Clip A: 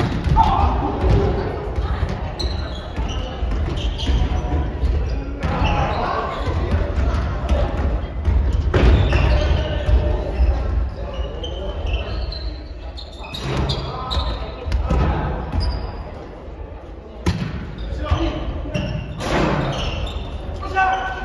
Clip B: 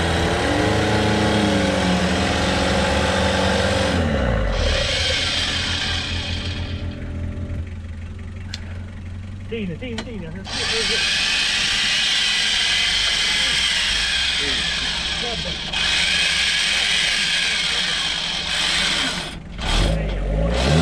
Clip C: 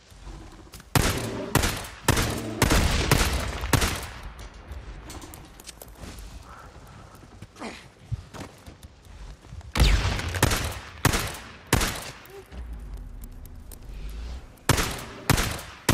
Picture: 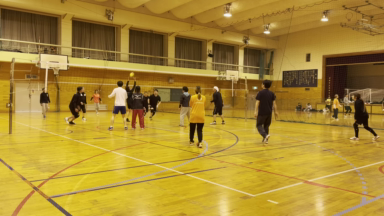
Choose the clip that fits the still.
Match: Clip A